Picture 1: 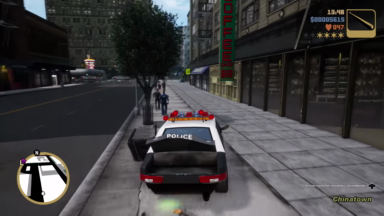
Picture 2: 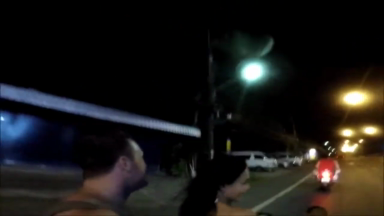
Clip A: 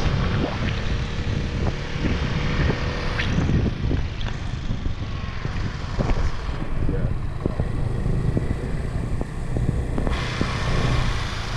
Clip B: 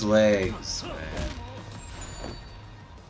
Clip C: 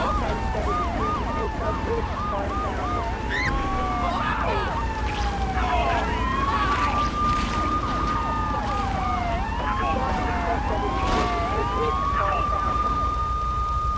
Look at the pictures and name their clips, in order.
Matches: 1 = C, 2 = A